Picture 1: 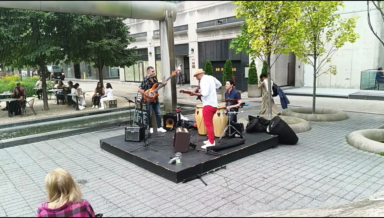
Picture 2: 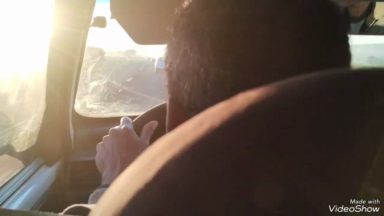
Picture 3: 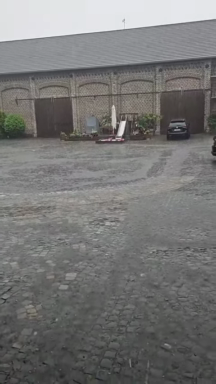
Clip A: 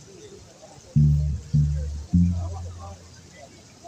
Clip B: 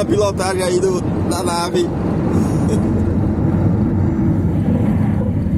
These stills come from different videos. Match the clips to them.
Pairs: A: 1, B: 2